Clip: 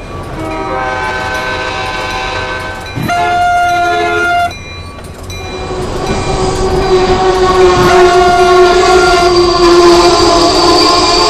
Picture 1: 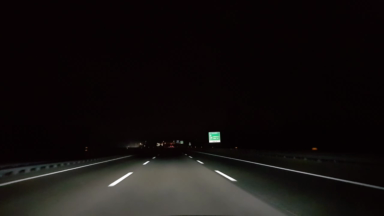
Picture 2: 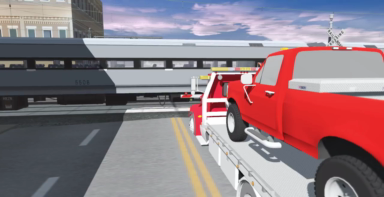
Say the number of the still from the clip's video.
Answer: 2